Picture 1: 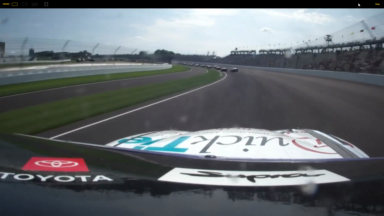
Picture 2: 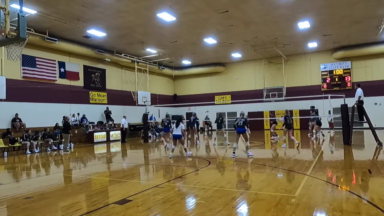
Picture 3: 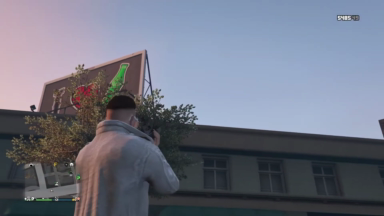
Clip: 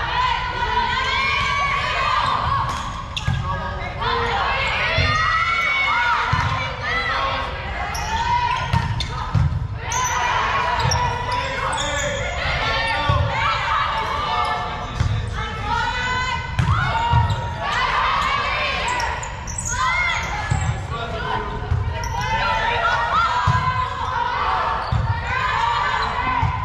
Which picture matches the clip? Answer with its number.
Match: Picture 2